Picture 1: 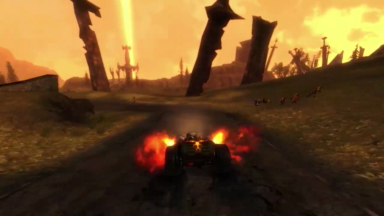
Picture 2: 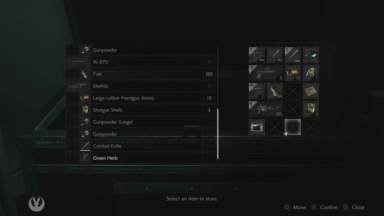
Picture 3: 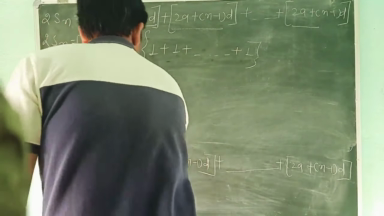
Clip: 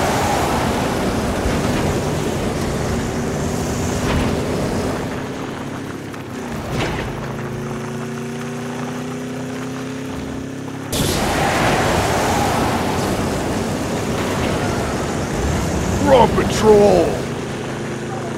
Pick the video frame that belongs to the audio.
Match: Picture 1